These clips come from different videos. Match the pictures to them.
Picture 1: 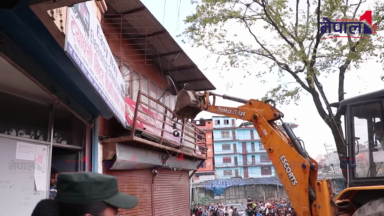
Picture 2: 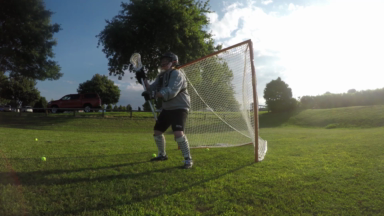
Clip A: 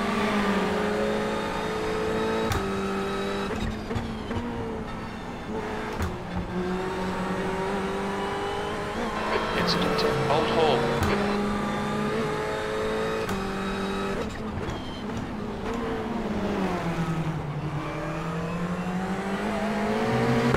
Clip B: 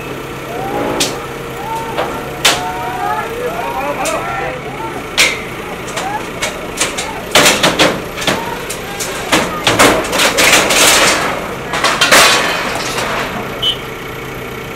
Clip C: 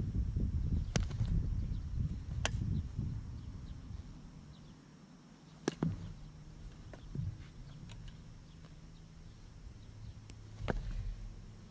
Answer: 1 B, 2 C